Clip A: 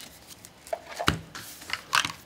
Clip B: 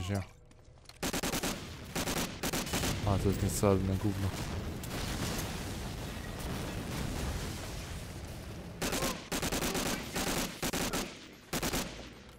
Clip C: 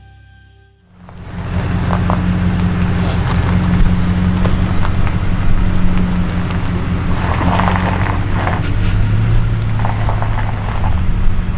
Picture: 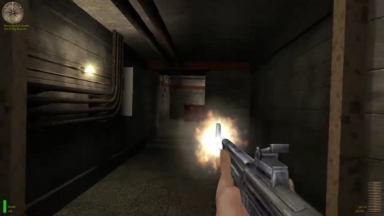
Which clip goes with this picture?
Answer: B